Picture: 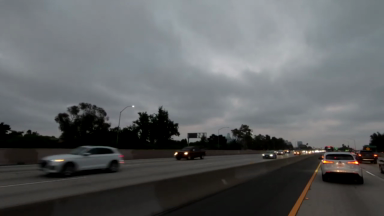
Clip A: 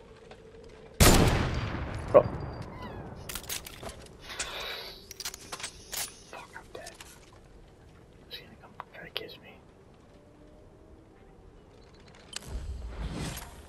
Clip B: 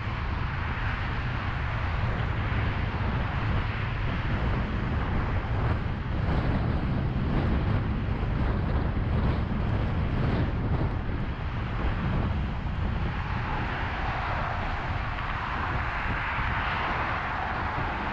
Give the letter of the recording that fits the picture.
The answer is B